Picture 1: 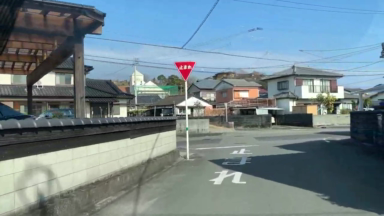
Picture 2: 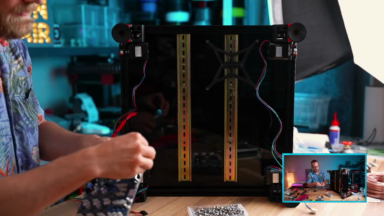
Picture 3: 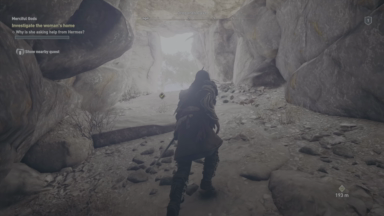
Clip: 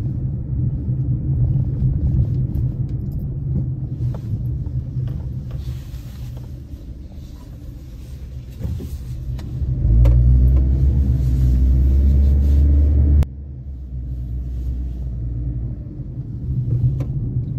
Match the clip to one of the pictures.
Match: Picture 1